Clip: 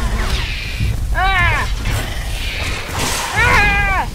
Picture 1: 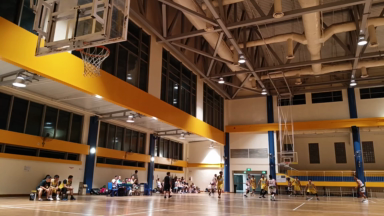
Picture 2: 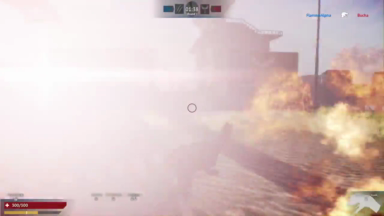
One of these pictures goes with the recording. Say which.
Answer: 2